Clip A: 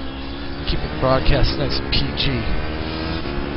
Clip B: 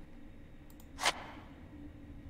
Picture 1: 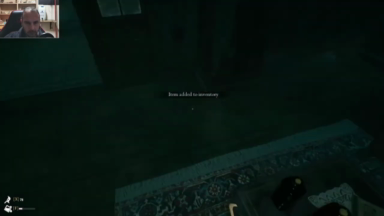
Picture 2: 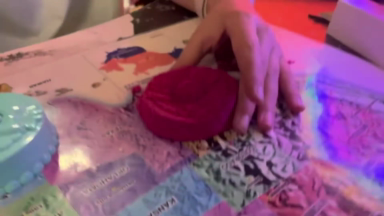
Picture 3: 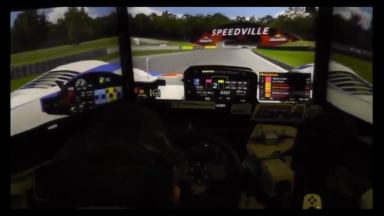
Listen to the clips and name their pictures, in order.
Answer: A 3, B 1